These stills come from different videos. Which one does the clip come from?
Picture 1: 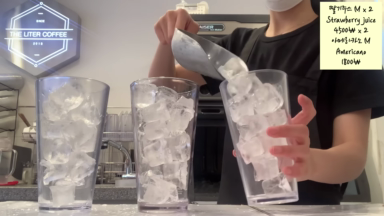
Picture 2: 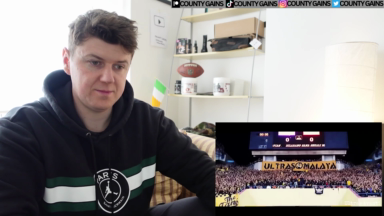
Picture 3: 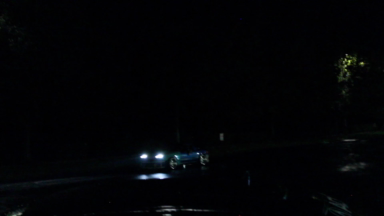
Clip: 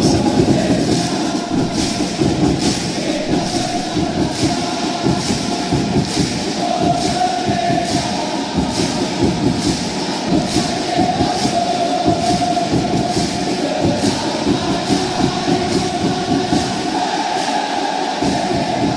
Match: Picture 2